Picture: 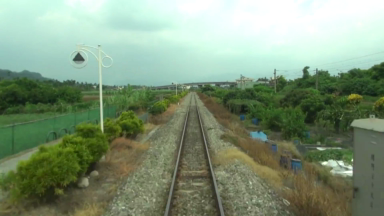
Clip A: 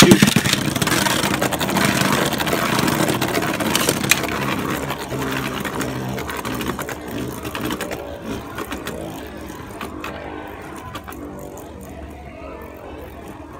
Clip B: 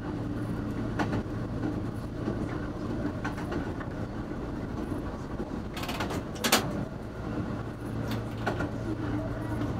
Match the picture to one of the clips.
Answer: B